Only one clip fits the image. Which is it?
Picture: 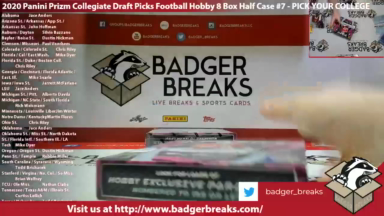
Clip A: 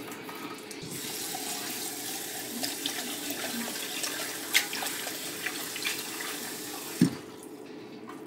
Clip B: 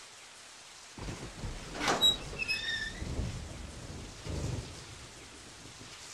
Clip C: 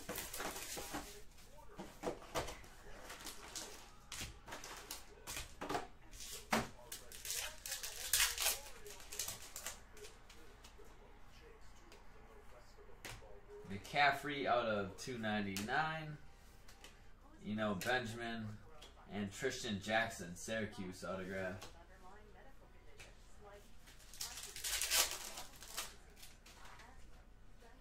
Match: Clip C